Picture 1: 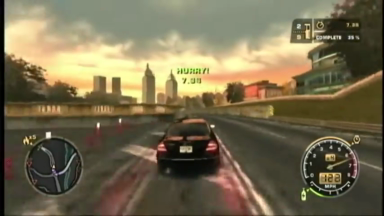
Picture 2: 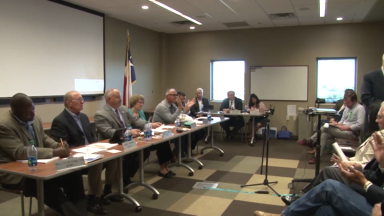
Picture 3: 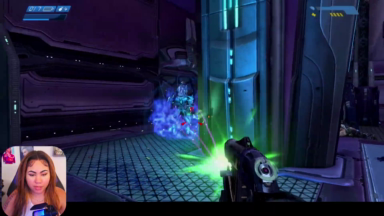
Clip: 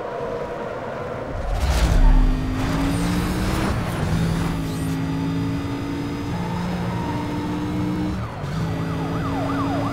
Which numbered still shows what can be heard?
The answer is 1